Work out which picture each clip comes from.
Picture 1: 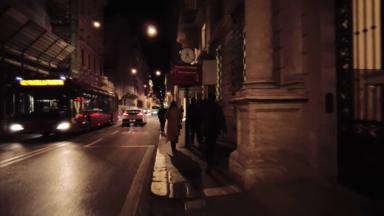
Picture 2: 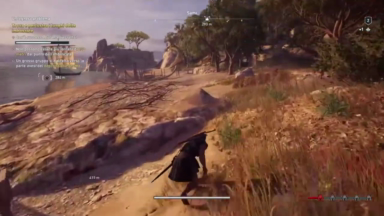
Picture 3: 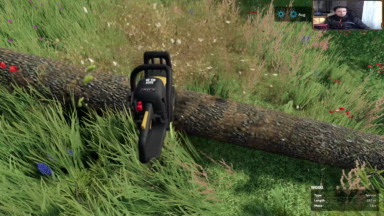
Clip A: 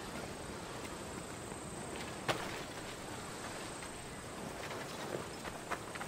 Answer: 2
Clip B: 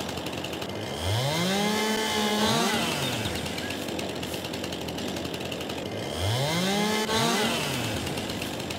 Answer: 3